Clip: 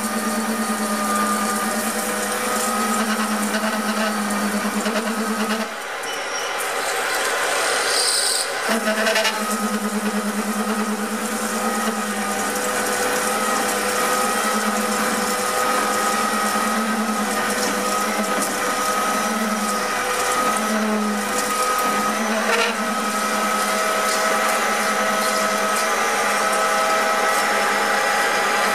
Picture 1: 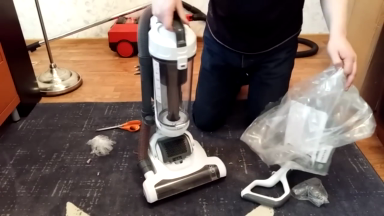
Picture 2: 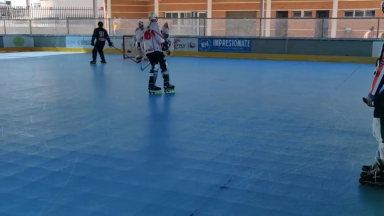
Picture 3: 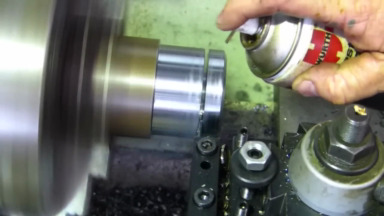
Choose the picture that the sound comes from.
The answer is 3